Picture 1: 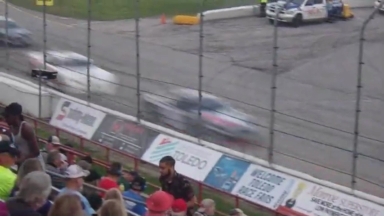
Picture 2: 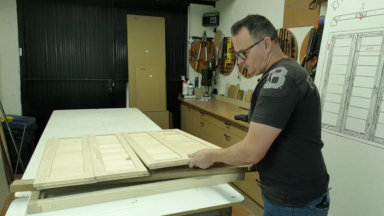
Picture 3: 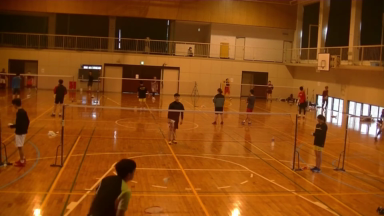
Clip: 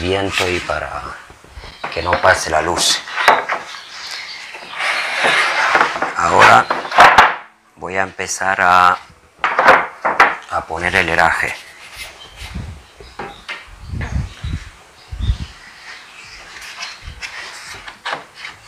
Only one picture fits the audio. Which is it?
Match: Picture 2